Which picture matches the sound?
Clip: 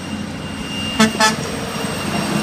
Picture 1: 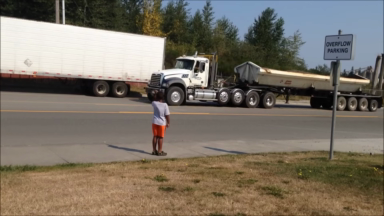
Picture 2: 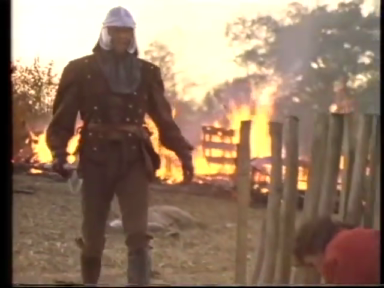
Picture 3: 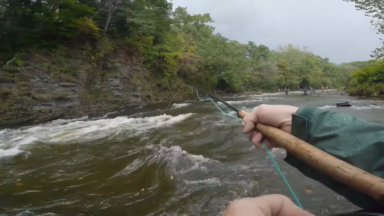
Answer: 1